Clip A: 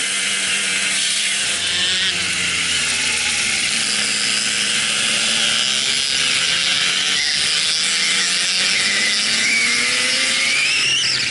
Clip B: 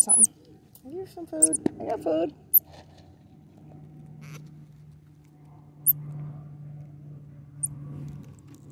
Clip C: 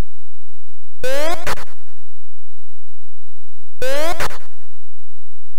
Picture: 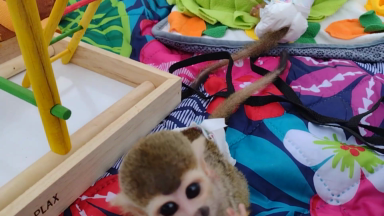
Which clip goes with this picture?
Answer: B